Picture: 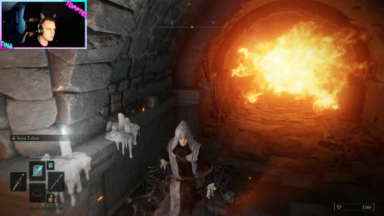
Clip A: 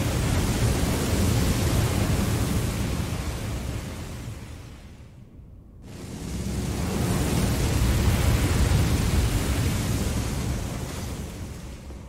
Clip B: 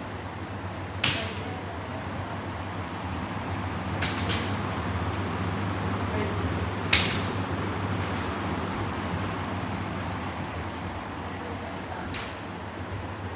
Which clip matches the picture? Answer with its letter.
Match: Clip A